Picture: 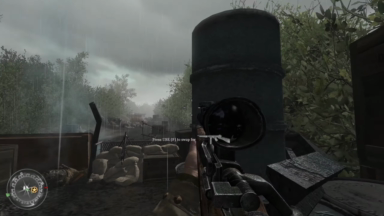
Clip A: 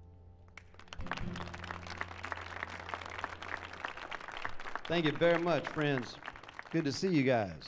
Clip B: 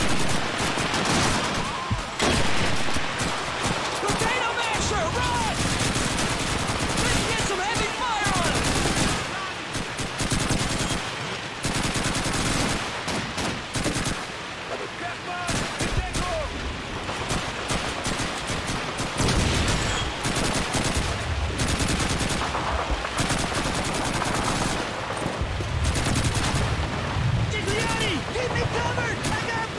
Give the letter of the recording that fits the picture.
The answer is B